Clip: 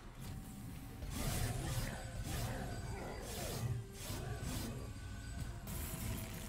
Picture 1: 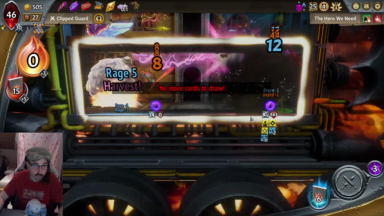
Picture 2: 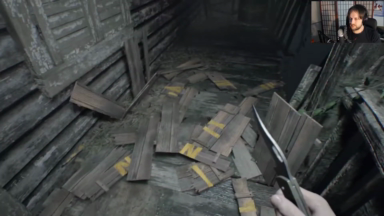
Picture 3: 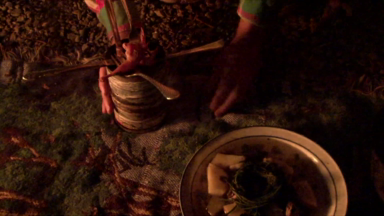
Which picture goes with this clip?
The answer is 1